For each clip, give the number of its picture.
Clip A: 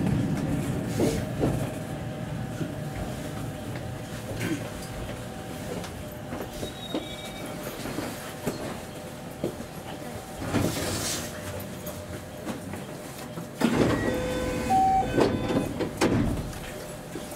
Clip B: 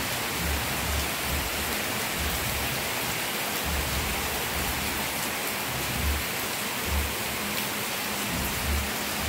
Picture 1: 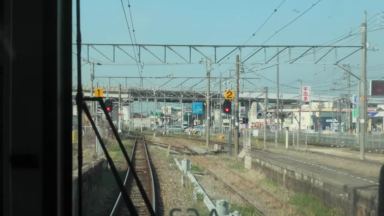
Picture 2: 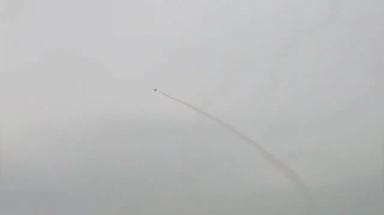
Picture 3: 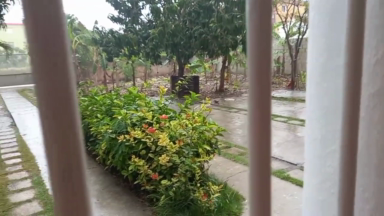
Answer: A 1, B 3